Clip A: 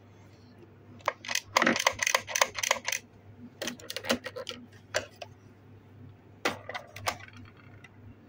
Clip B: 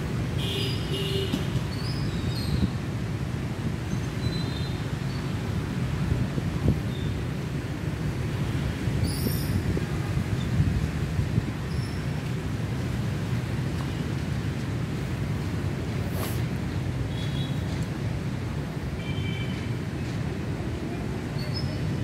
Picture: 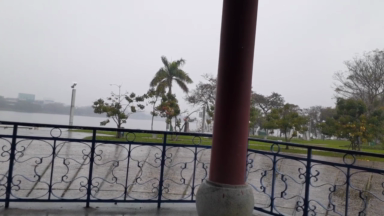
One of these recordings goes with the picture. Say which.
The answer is B